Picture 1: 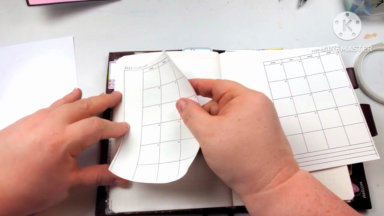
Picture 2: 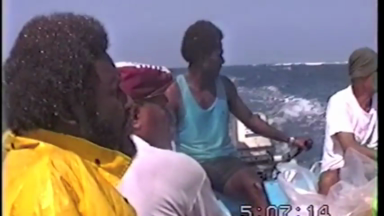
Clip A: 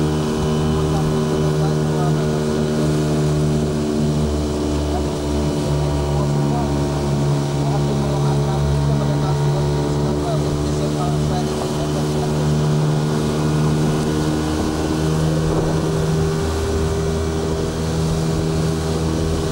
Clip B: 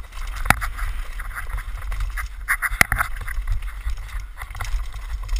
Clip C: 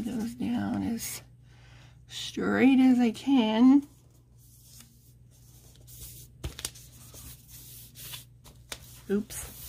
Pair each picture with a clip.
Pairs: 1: C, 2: A